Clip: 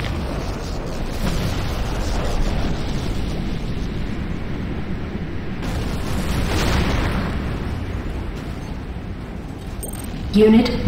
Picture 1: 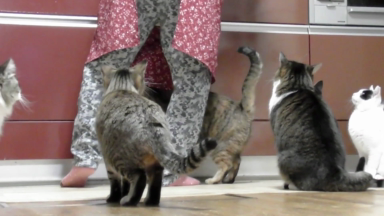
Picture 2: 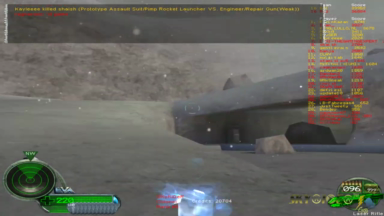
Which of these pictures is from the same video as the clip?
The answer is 2